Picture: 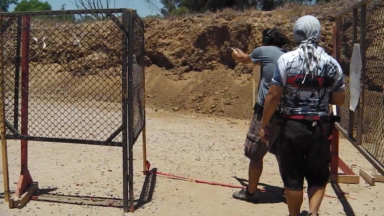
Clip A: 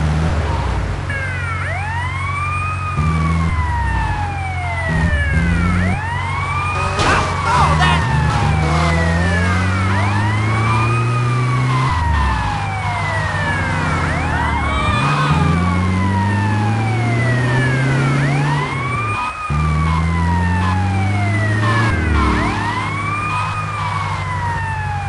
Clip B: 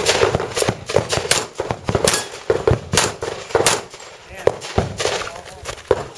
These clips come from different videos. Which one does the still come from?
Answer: B